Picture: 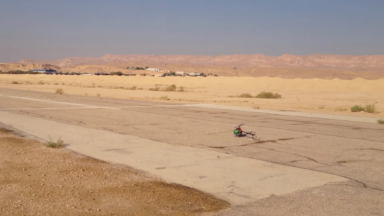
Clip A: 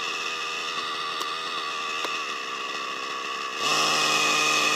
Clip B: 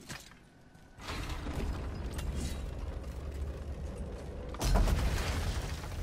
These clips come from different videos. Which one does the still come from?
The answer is A